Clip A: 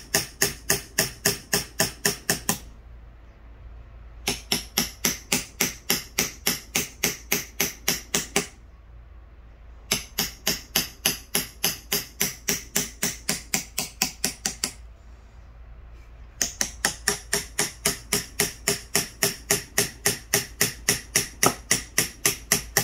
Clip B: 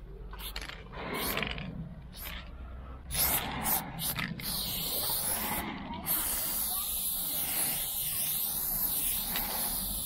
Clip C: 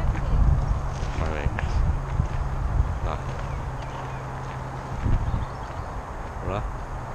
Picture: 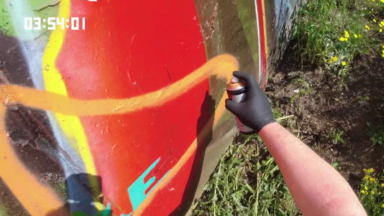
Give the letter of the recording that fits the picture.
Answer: B